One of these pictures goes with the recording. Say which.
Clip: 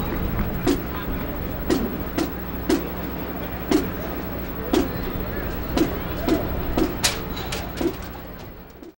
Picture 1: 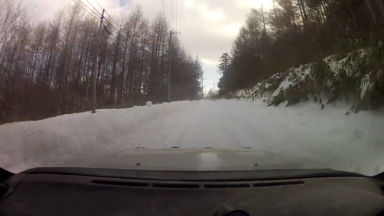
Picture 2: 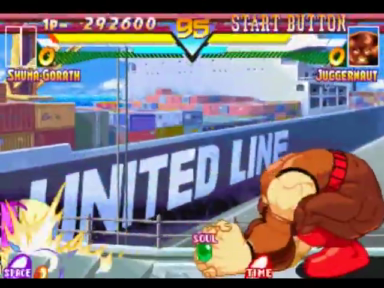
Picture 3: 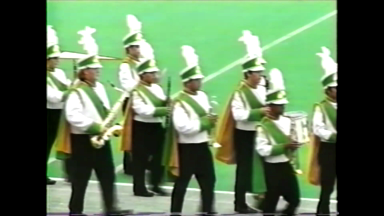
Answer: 3